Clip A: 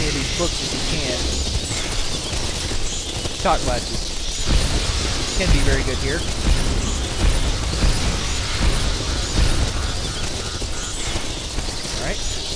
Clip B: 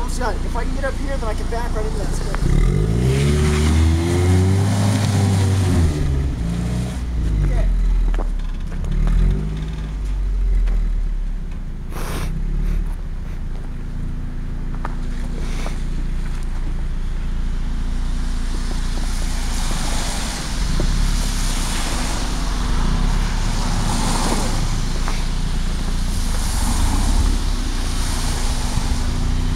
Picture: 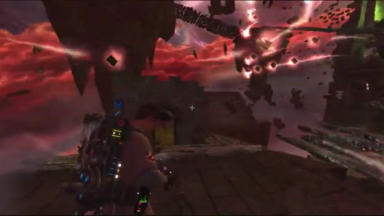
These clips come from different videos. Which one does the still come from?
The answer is A